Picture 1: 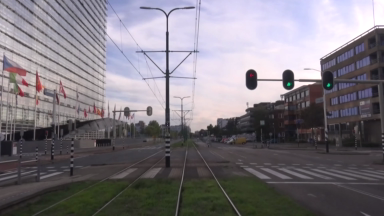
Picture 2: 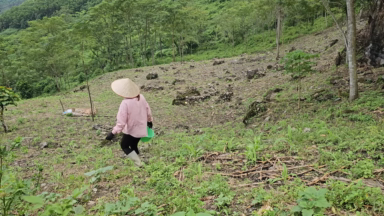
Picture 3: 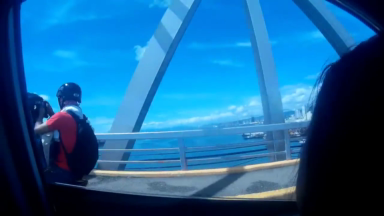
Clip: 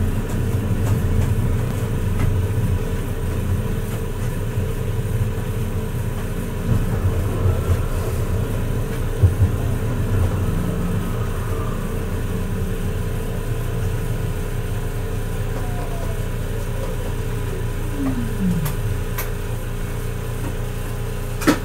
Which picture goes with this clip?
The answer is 1